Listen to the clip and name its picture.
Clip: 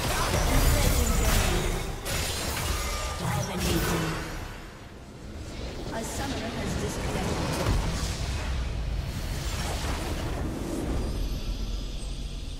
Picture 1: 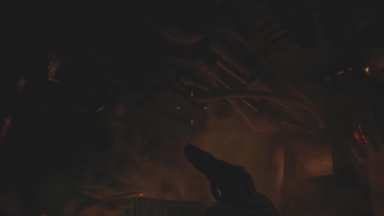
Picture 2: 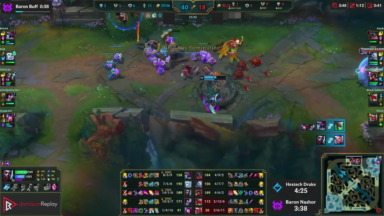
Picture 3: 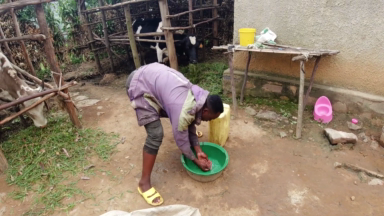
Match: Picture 2